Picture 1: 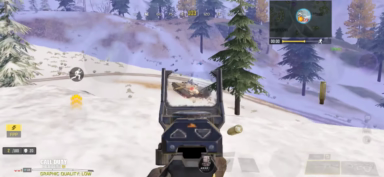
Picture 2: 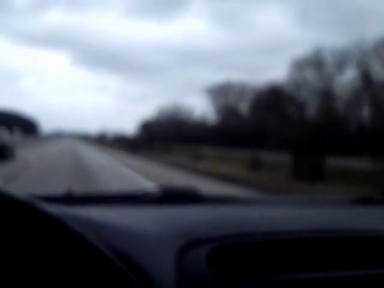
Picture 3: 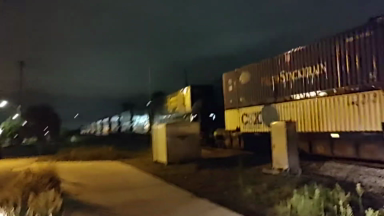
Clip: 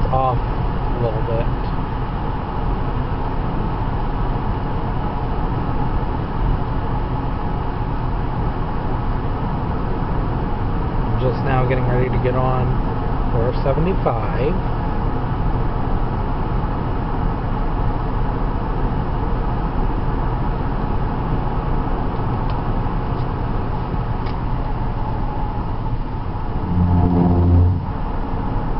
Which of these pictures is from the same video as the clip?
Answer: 2